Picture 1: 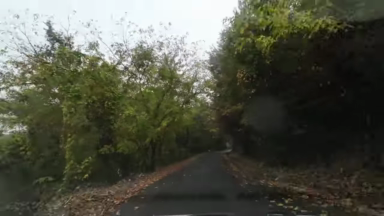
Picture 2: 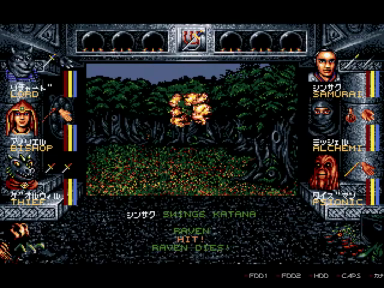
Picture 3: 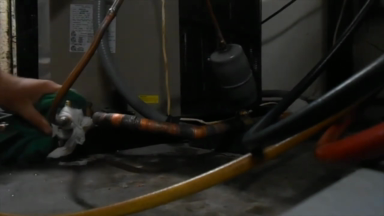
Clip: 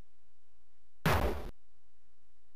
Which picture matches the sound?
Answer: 2